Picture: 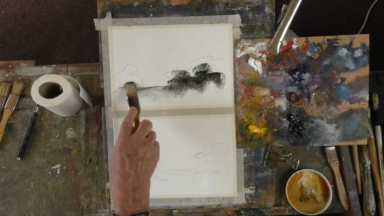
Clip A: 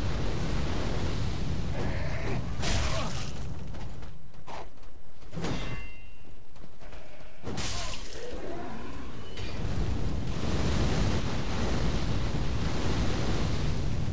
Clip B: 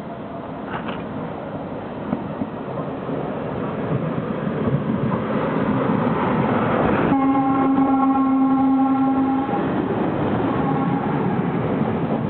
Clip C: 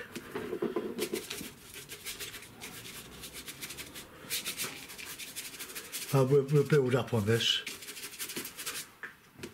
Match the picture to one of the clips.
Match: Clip C